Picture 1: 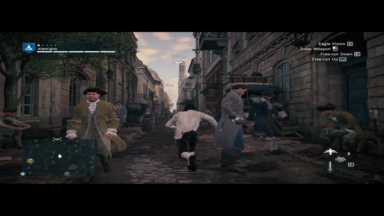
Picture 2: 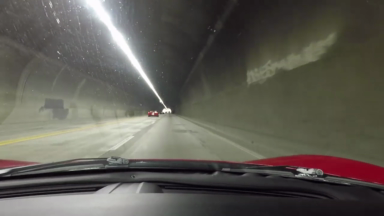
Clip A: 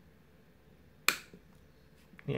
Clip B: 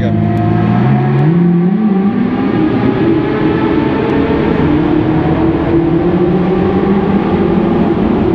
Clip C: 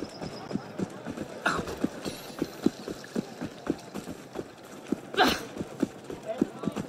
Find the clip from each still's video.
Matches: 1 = C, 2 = B